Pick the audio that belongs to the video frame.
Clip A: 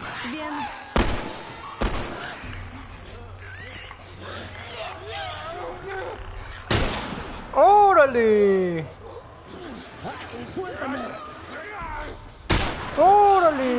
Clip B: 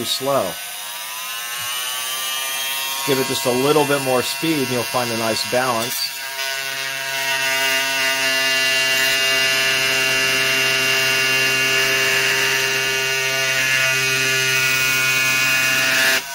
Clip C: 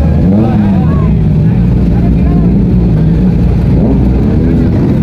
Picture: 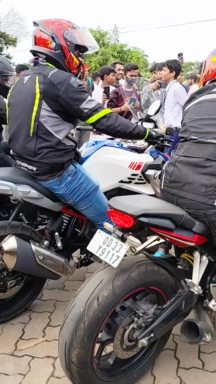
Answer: C